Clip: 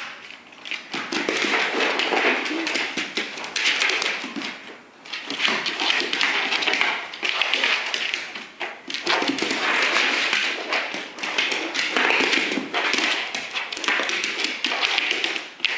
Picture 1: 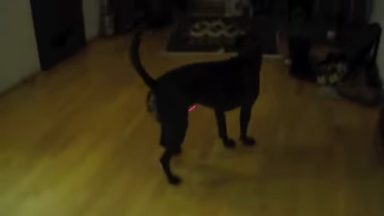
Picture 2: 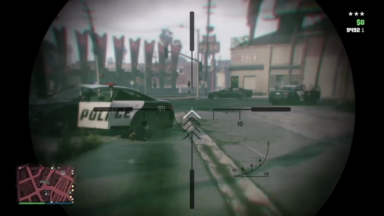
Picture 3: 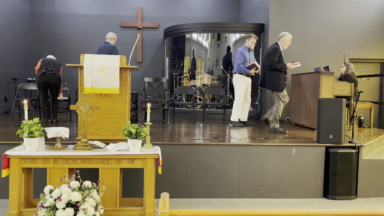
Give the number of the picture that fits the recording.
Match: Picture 1